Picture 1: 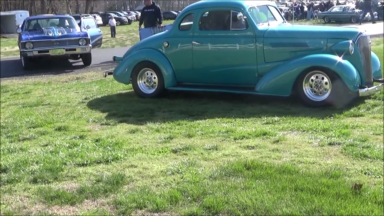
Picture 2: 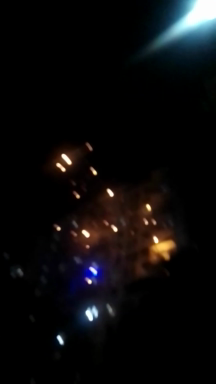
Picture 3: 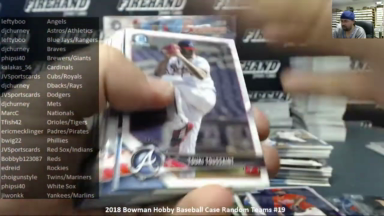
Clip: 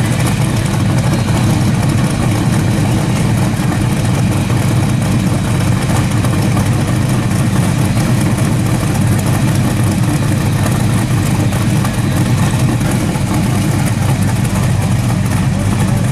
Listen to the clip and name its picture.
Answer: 1